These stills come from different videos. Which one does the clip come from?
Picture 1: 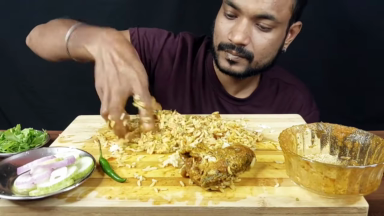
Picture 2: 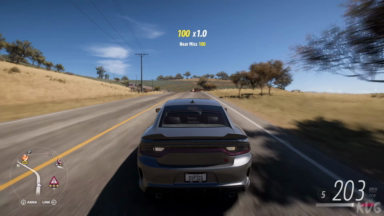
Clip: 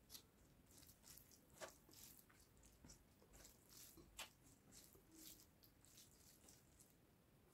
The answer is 1